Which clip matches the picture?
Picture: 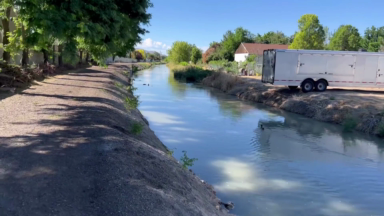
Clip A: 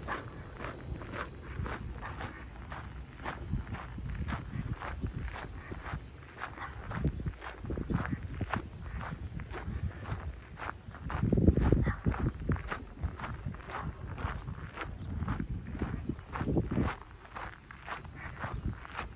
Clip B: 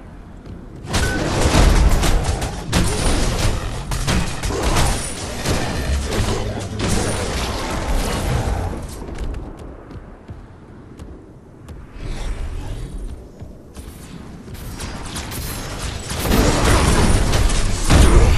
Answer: A